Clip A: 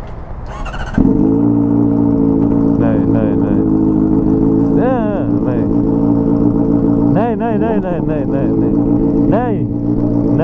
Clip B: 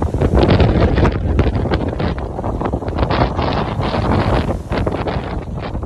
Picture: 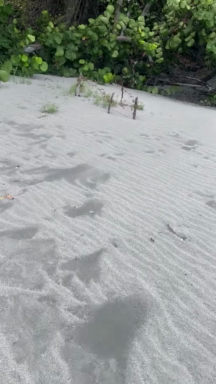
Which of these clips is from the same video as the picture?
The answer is B